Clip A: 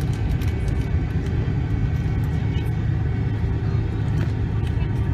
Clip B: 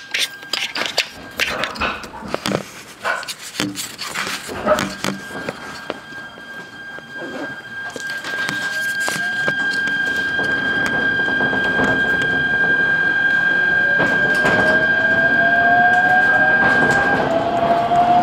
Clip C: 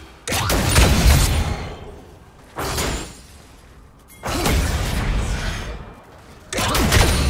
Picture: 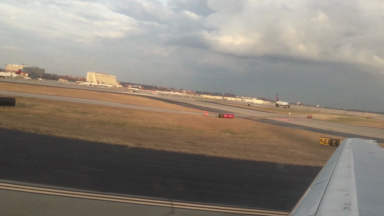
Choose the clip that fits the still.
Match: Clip A